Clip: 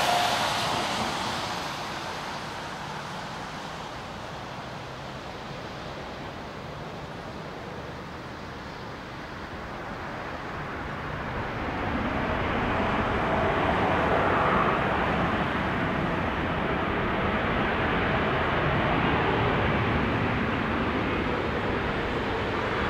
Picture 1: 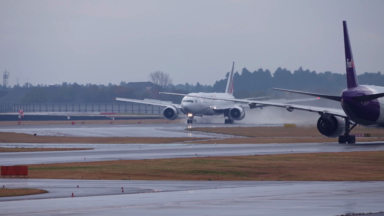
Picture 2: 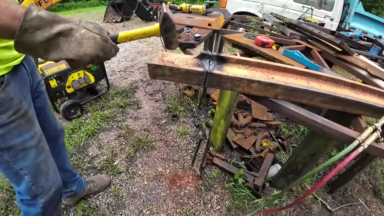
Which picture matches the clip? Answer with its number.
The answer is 1